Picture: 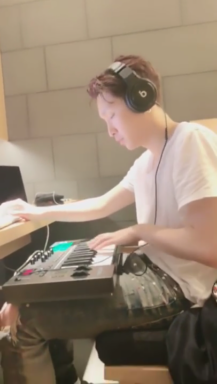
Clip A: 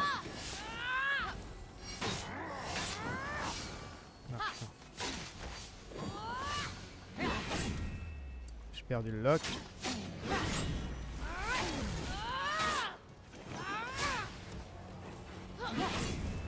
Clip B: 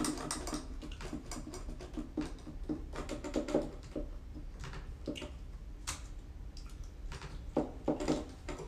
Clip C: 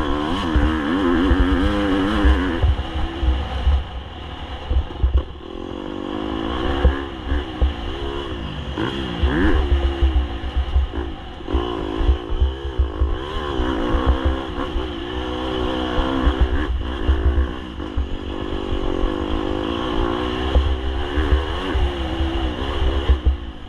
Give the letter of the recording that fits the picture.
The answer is B